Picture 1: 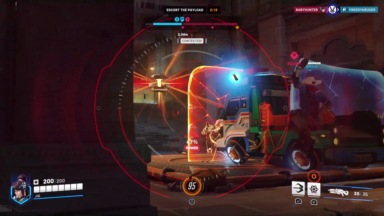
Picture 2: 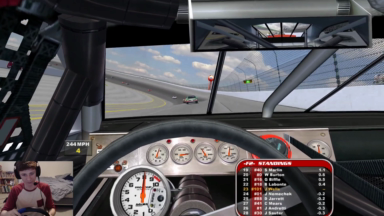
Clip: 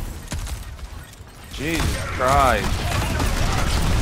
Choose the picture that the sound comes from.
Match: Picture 1